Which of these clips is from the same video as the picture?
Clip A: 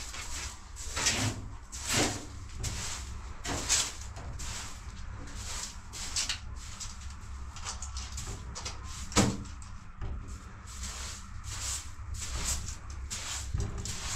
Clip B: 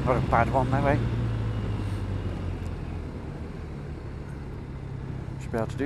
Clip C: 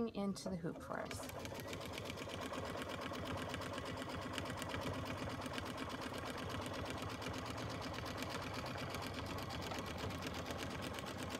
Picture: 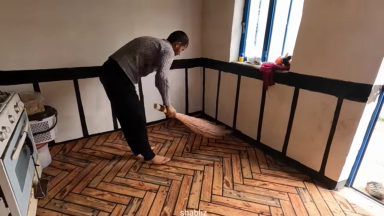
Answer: A